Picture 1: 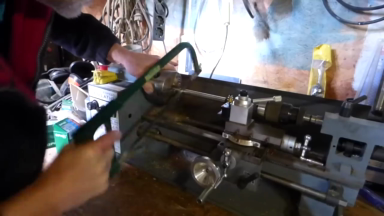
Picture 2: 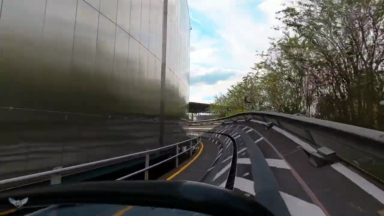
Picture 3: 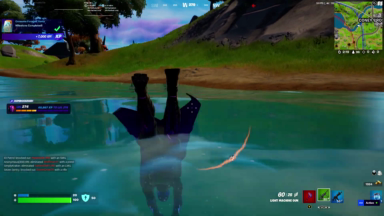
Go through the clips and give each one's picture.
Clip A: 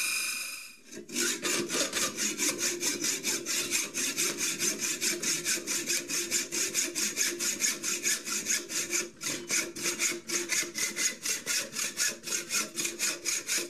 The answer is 1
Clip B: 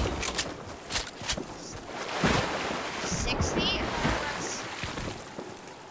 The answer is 3